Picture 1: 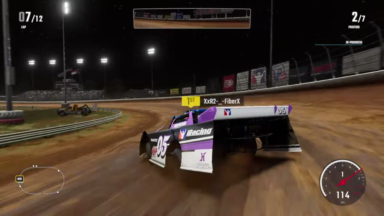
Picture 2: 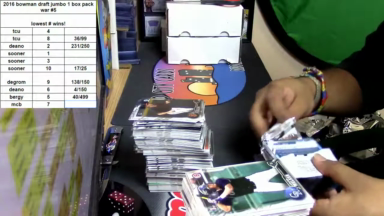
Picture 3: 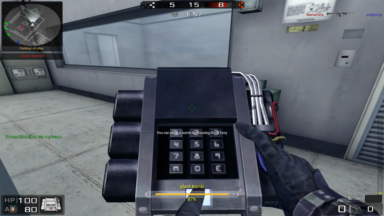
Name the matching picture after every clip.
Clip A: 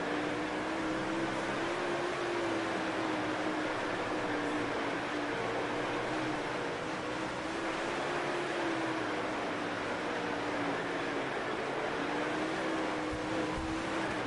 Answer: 1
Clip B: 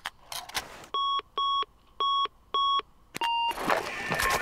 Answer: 3